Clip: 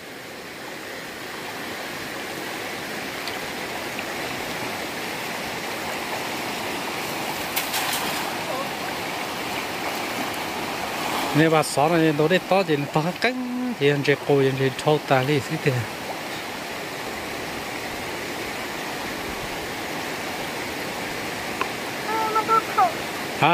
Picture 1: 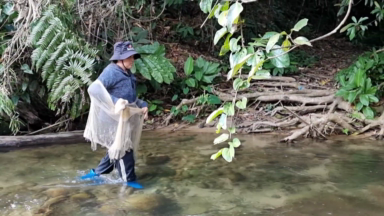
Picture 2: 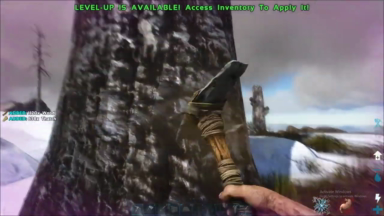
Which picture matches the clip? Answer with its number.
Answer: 1